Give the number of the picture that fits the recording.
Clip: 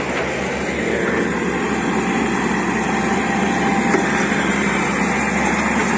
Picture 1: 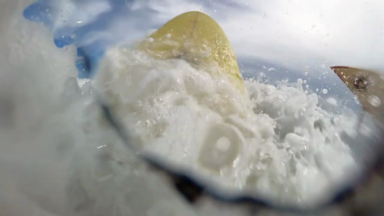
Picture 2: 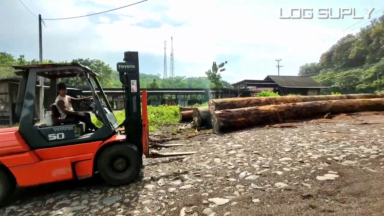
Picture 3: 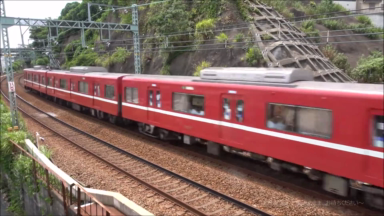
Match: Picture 2